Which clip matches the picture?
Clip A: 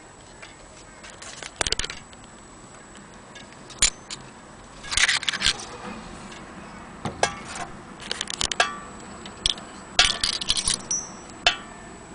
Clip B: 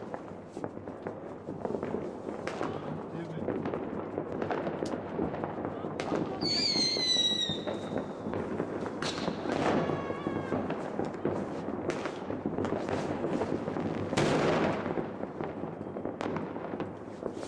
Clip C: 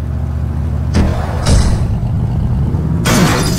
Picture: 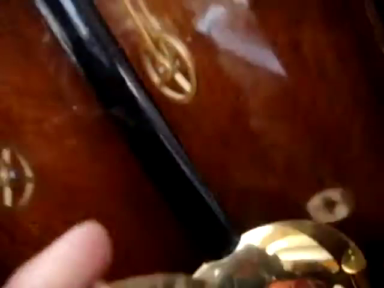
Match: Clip A